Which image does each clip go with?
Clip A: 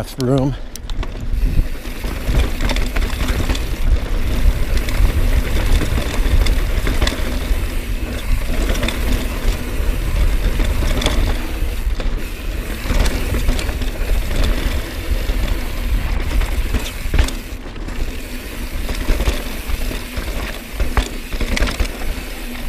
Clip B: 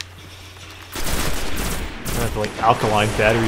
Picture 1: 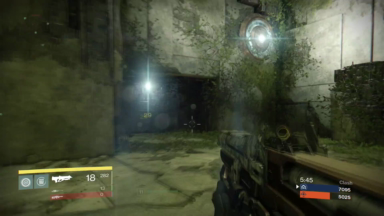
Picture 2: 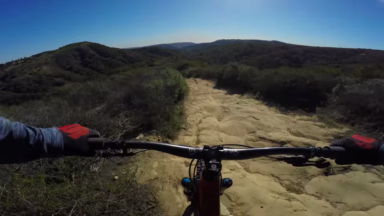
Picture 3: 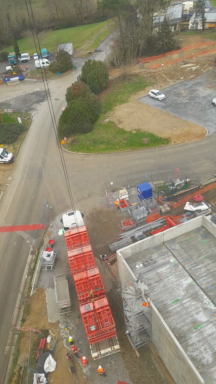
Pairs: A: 2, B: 1